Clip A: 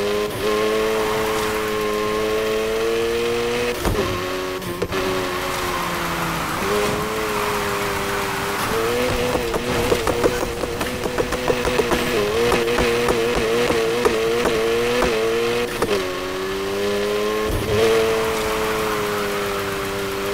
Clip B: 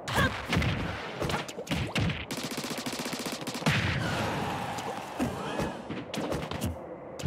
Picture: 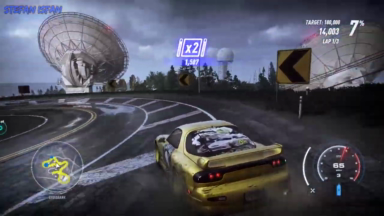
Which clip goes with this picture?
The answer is A